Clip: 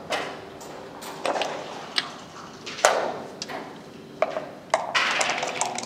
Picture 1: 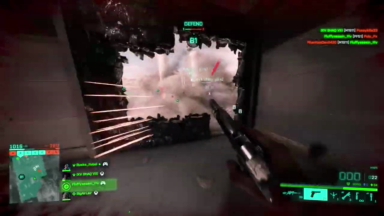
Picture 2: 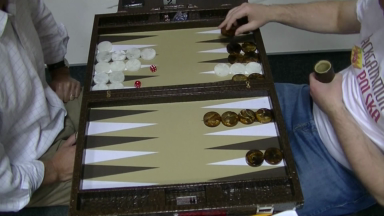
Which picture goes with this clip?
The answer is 2